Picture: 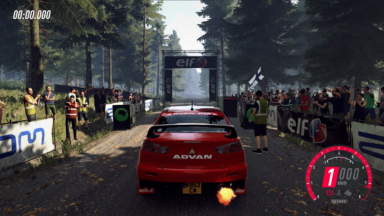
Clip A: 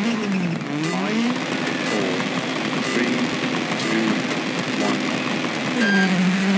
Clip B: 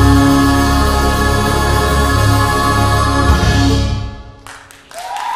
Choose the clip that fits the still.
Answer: A